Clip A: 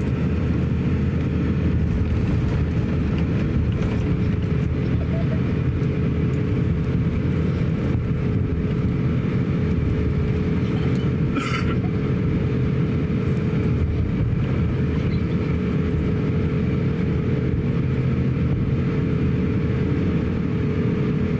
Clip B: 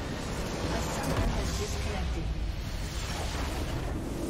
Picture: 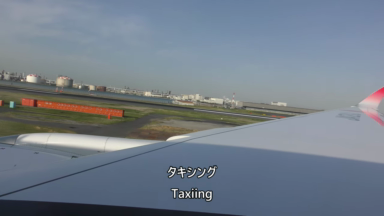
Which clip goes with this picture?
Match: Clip A